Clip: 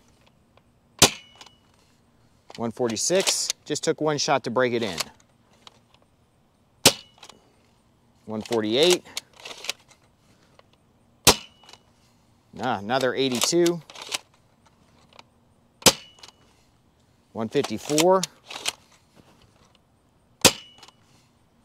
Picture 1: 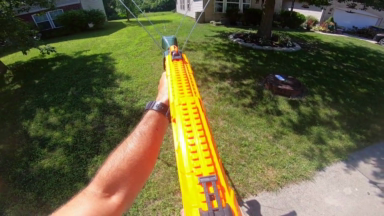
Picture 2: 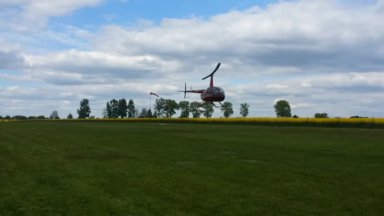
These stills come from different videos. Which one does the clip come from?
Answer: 1